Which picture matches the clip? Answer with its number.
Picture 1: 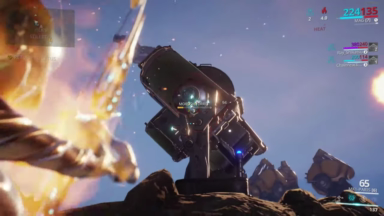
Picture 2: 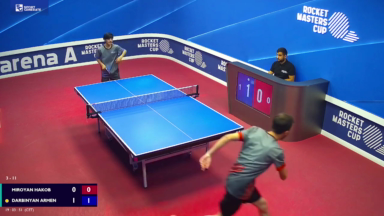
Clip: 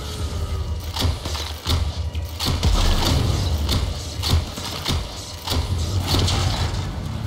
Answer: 1